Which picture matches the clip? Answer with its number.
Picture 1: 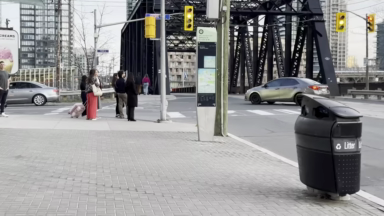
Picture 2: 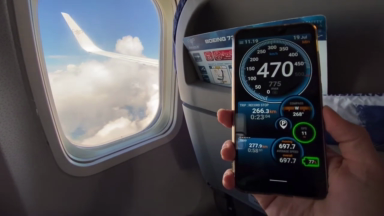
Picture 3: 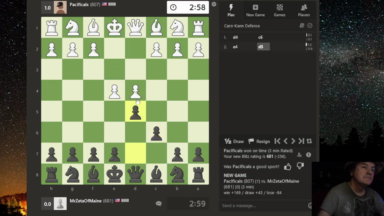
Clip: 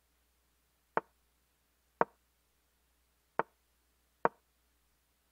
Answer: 3